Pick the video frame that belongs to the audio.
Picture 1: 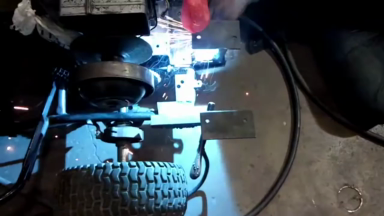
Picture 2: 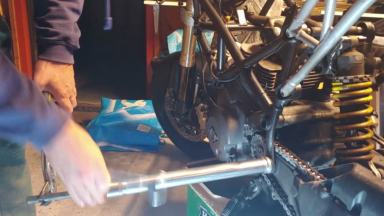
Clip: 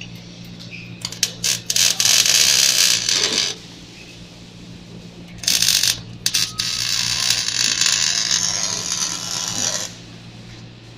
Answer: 1